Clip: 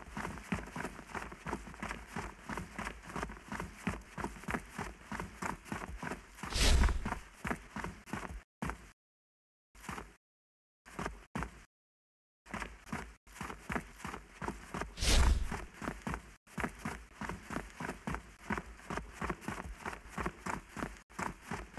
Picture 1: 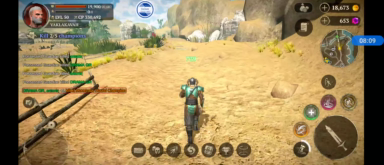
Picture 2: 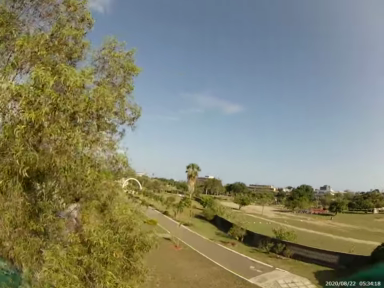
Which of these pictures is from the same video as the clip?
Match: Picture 1